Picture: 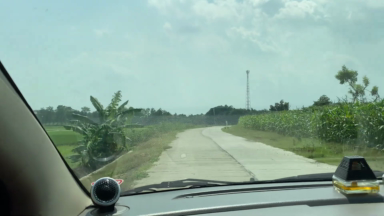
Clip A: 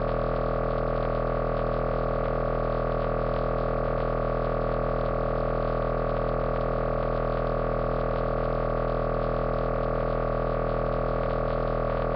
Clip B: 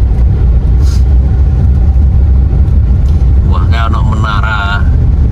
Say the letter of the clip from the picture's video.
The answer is B